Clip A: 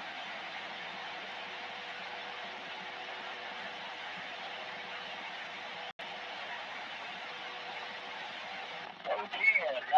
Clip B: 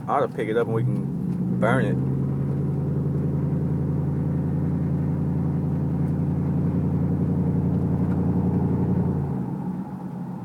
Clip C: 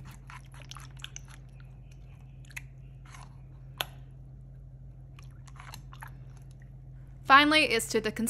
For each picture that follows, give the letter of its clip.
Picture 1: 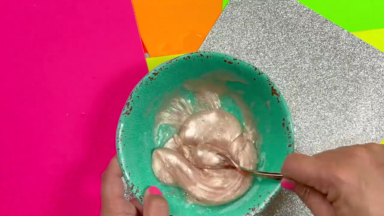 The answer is C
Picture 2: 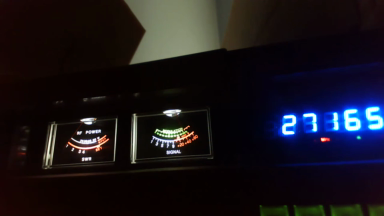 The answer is A